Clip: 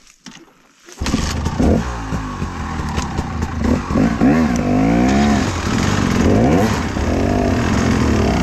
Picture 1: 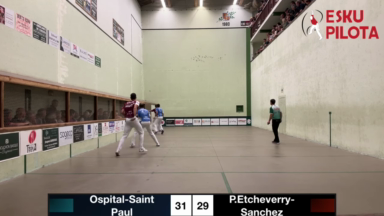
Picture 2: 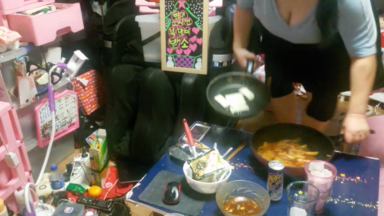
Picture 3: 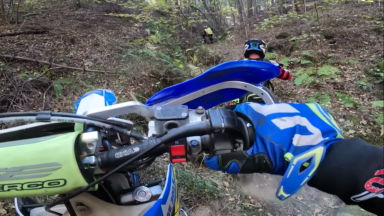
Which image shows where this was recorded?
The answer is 3